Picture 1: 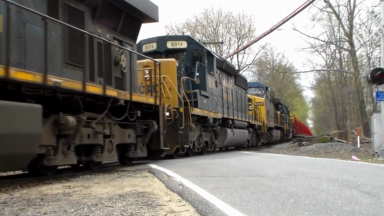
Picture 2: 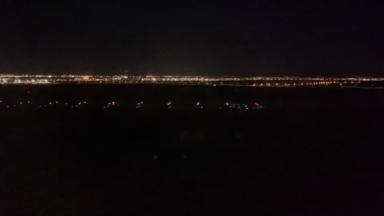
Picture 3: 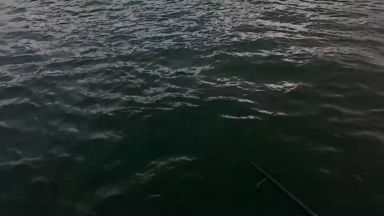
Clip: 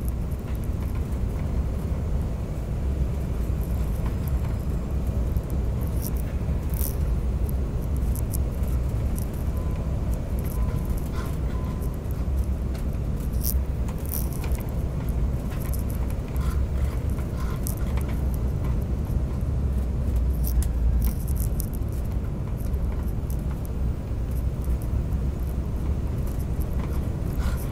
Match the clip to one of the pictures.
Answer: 2